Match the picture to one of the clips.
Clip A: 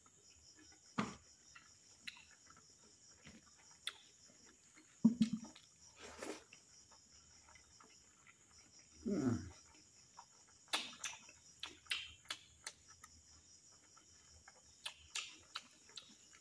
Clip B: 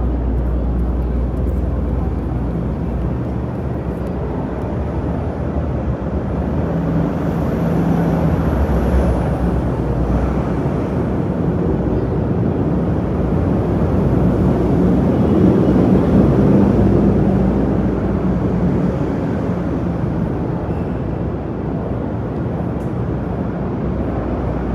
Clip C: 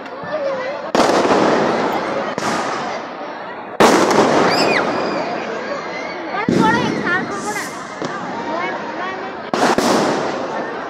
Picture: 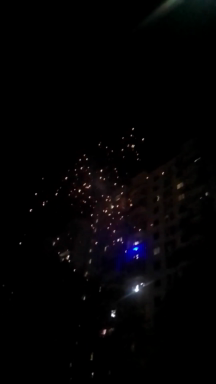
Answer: C